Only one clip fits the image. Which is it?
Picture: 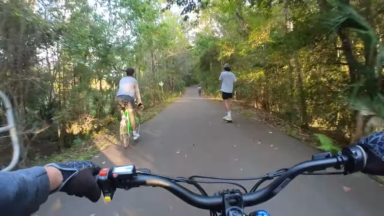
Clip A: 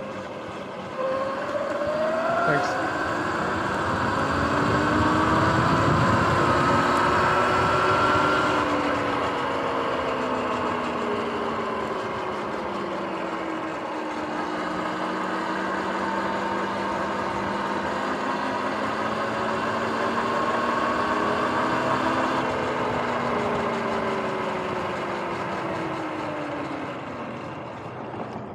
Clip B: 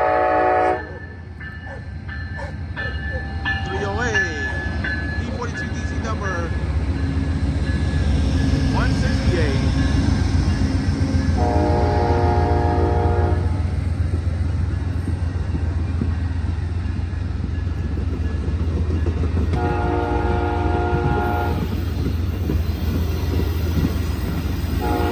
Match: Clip A